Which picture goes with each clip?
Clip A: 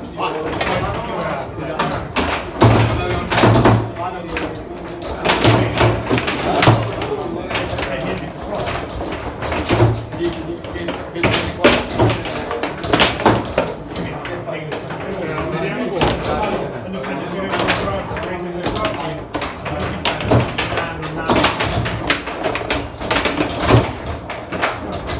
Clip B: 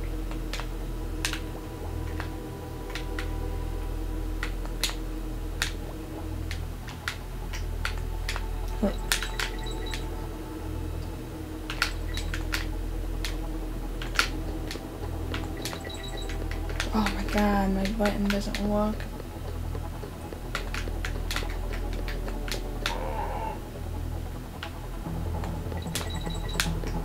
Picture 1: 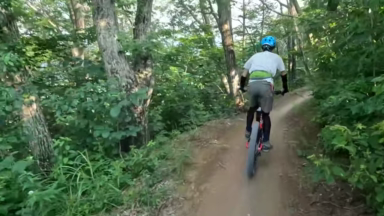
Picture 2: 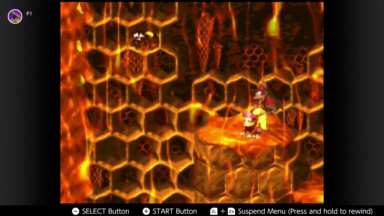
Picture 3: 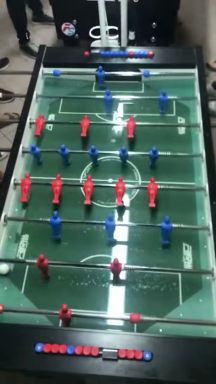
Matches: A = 3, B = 2